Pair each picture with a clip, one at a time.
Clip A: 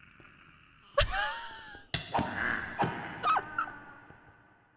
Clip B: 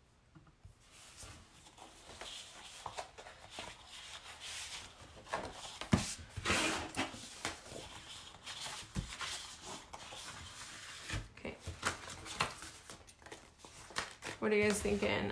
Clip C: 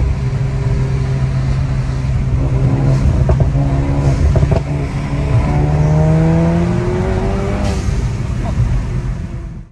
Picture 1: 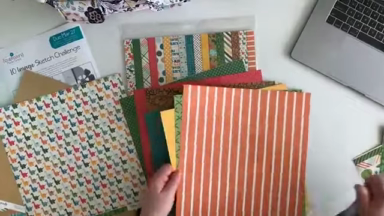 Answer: B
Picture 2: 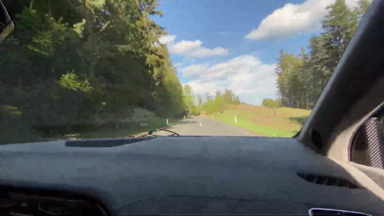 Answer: C